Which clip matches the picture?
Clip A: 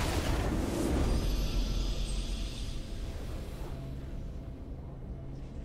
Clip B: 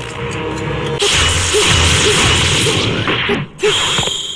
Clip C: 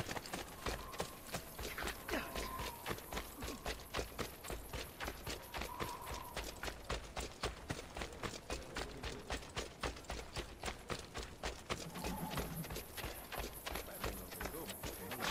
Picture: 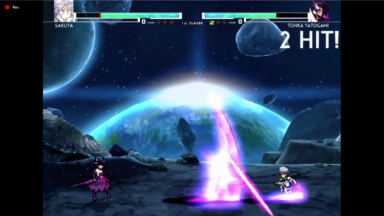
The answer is B